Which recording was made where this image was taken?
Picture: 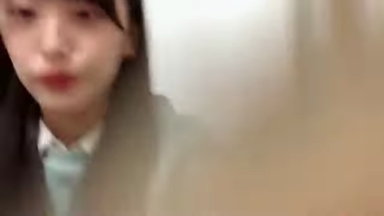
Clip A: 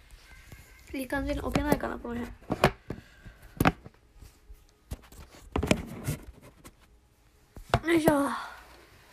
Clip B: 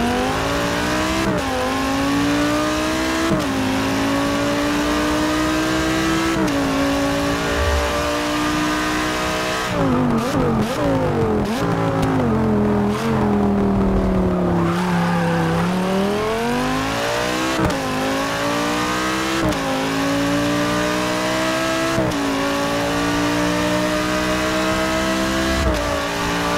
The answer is A